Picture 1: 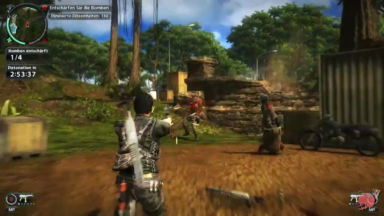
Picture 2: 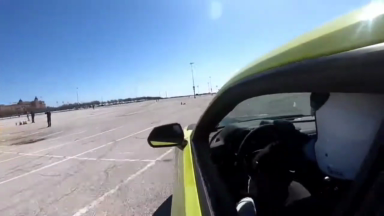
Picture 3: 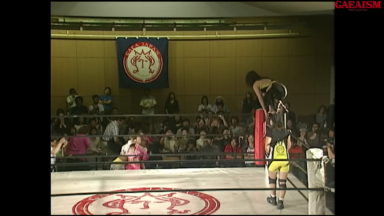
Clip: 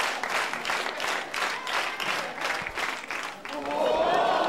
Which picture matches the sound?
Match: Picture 3